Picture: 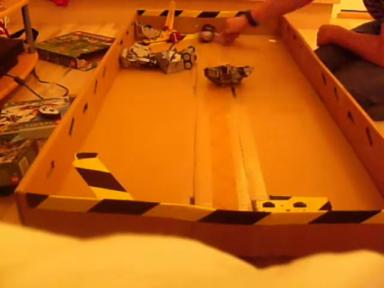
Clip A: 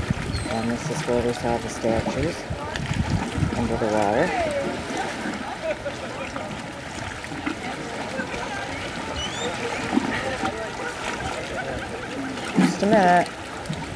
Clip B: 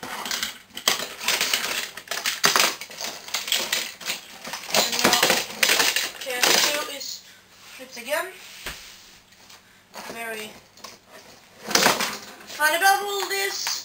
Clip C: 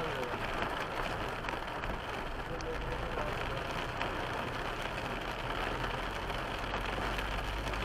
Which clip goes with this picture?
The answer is B